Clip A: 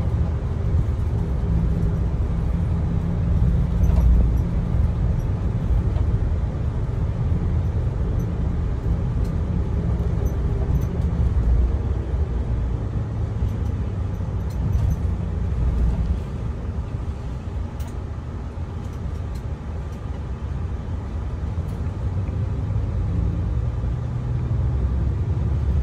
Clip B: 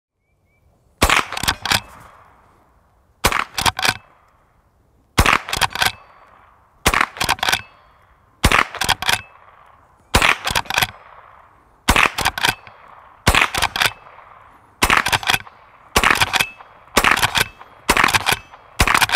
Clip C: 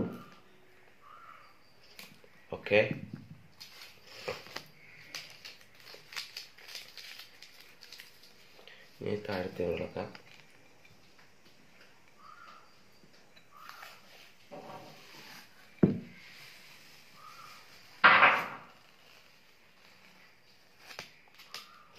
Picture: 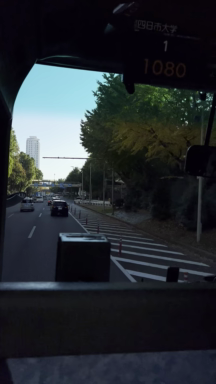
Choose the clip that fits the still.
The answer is A